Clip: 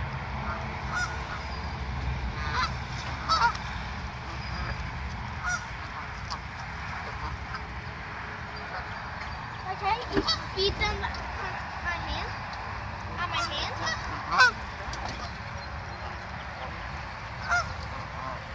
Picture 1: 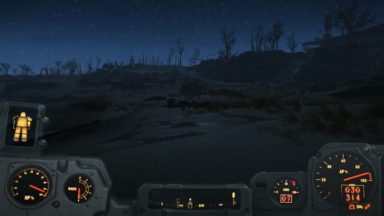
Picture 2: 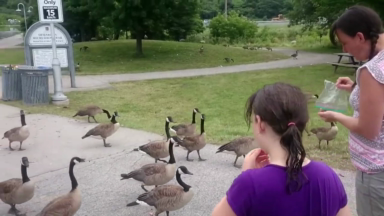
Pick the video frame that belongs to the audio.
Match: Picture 2